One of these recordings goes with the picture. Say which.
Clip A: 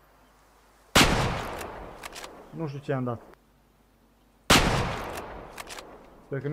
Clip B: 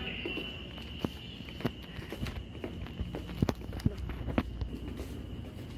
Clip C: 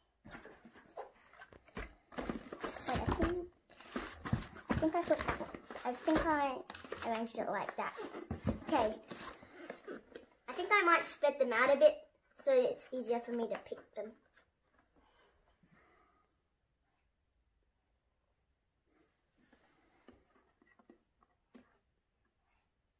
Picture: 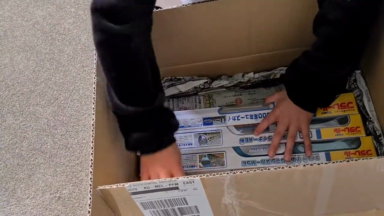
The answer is C